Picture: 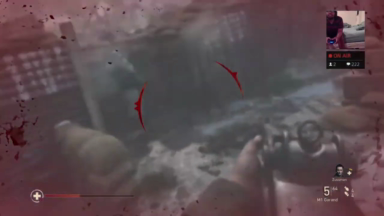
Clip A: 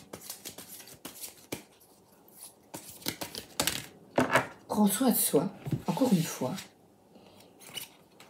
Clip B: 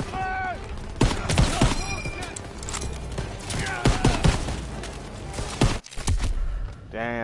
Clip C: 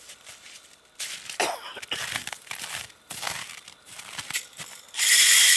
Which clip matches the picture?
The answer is B